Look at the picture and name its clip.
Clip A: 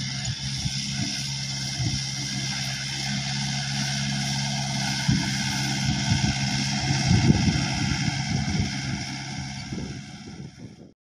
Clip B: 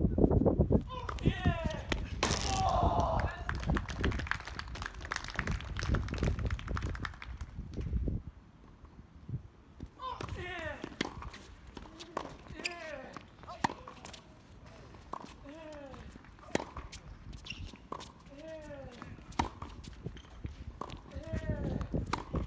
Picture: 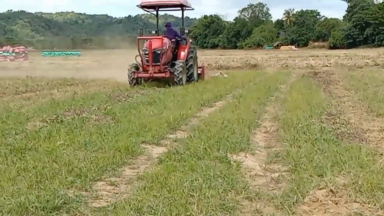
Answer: A